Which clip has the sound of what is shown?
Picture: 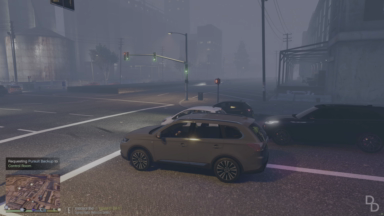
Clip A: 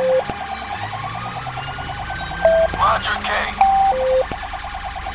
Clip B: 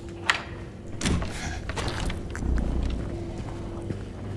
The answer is A